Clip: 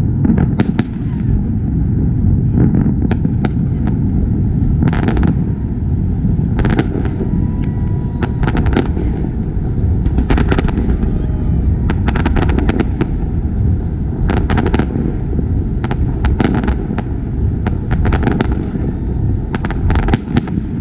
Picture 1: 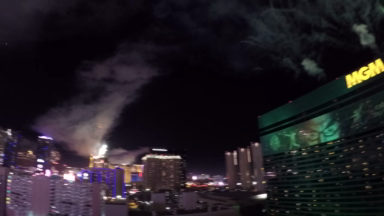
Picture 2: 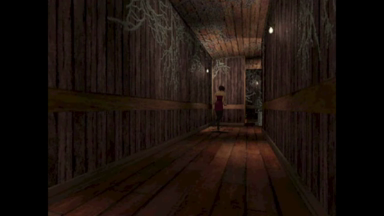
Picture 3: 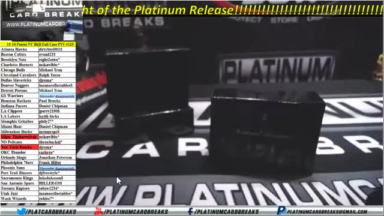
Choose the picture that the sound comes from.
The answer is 1